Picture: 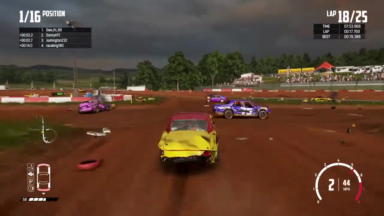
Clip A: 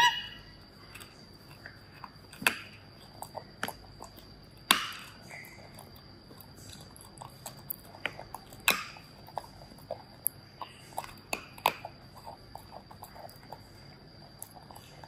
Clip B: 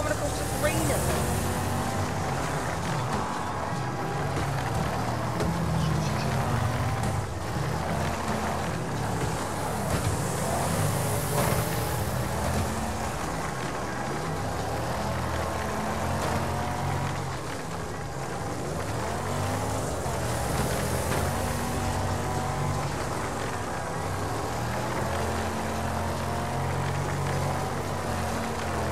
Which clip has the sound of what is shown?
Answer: B